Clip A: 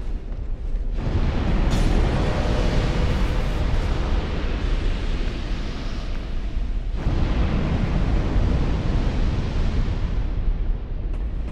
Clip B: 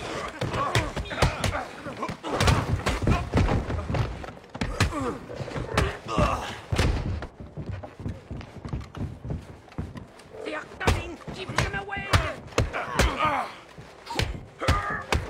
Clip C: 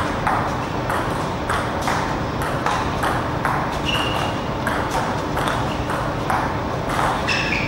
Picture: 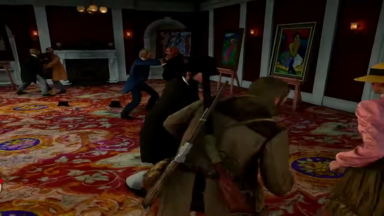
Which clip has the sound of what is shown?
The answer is B